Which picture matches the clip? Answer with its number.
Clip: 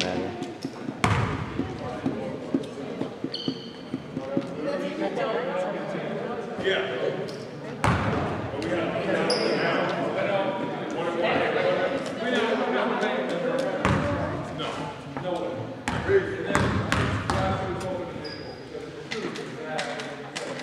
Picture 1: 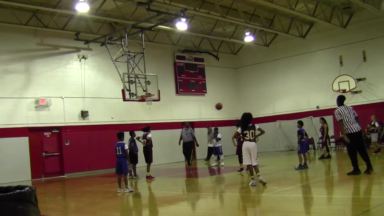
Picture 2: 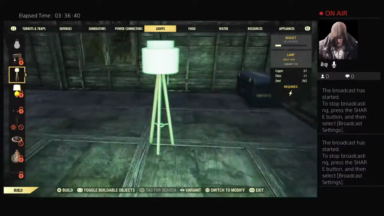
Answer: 1